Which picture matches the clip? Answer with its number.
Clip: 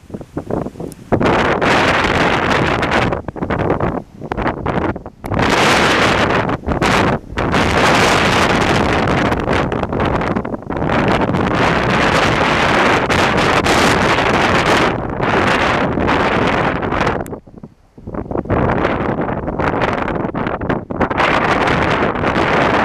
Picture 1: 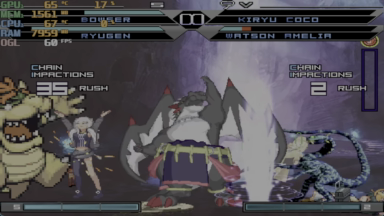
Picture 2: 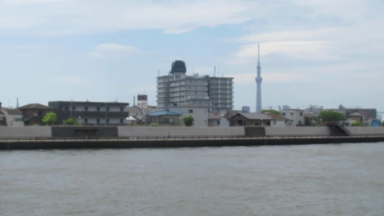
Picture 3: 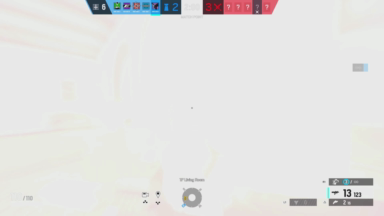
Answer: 2